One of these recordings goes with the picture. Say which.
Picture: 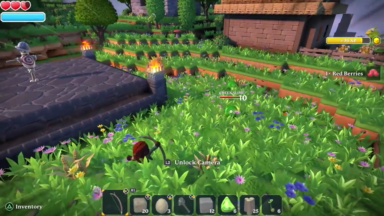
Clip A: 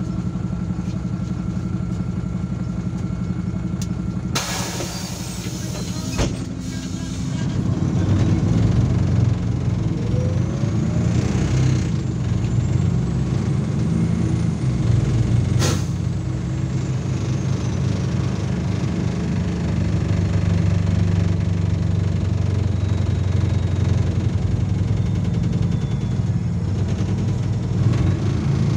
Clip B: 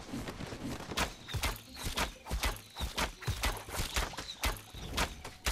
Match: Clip B